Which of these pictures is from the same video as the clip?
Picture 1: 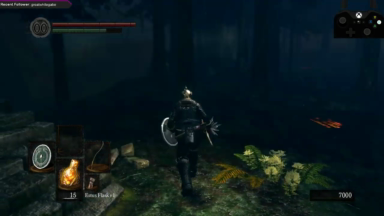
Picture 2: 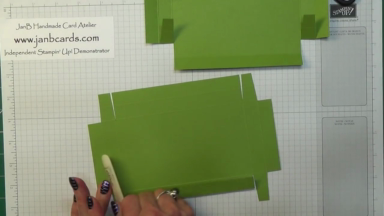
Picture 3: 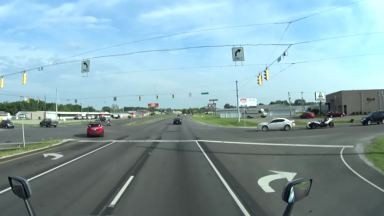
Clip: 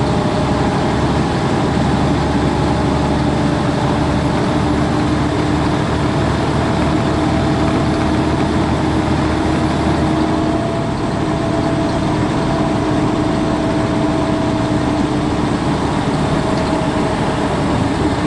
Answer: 3